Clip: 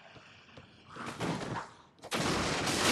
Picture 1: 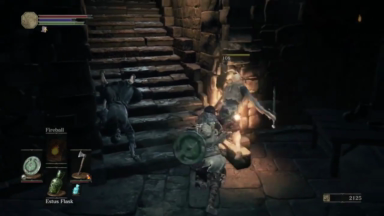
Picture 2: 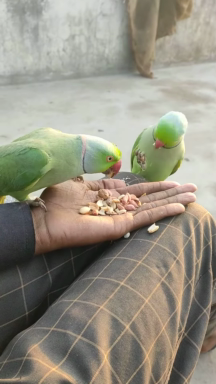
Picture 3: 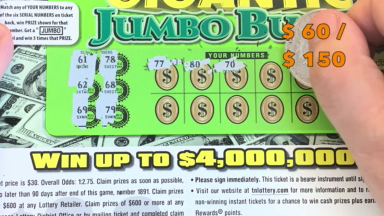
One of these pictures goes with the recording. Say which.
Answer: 1